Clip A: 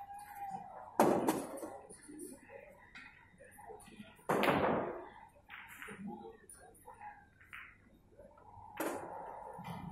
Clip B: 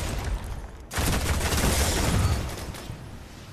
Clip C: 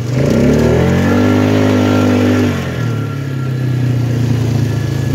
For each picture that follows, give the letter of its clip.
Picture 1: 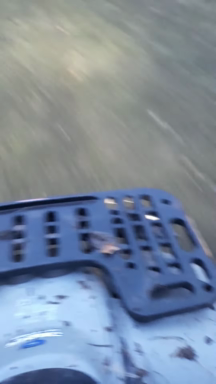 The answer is C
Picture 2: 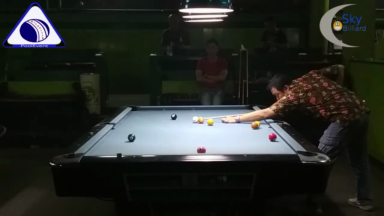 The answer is A